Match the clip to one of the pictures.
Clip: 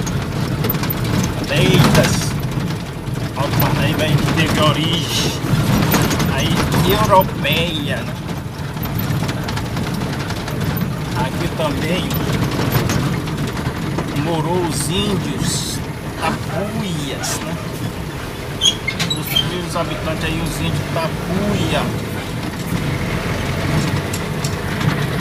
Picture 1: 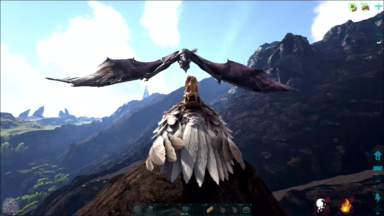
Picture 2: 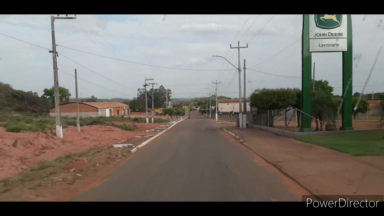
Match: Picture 2